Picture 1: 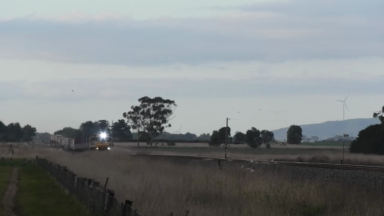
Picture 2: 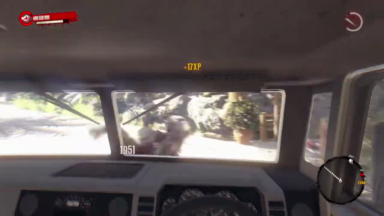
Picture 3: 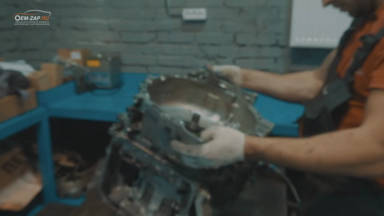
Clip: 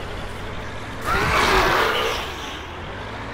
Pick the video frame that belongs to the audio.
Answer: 2